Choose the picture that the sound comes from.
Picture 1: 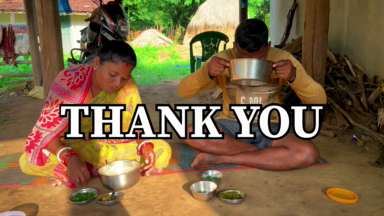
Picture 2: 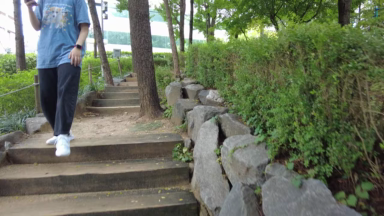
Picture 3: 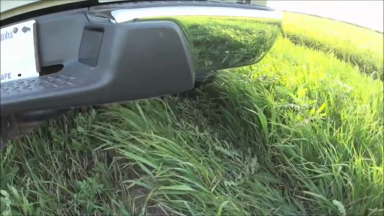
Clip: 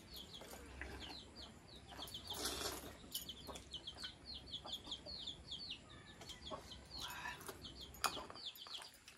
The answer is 1